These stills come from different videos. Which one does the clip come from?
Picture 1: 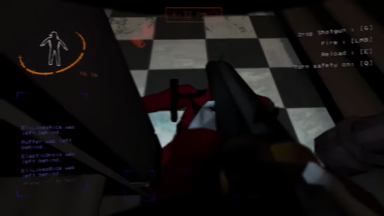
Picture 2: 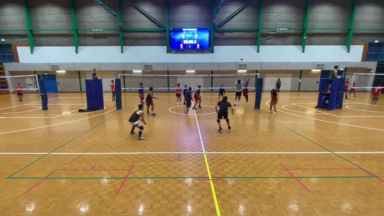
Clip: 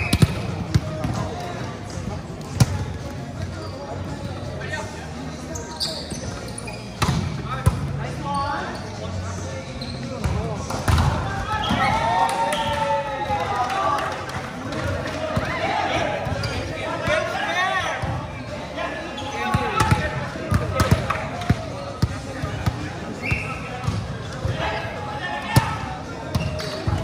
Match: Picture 2